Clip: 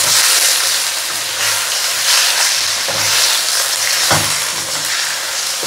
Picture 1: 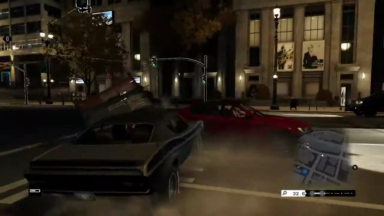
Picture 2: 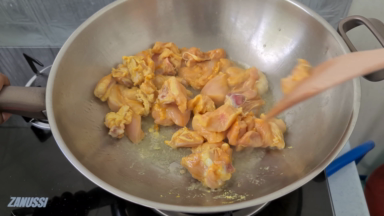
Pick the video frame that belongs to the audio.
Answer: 2